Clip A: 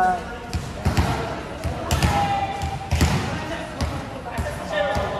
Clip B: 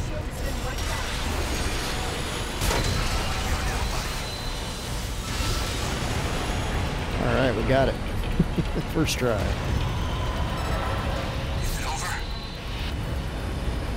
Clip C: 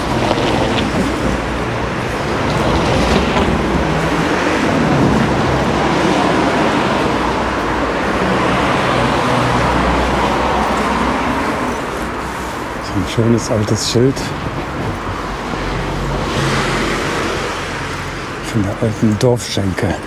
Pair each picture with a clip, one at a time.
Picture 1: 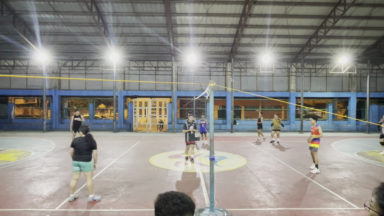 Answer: A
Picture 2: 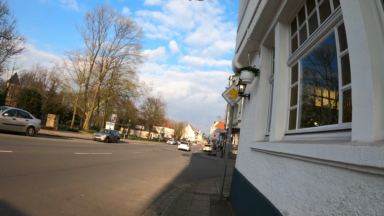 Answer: C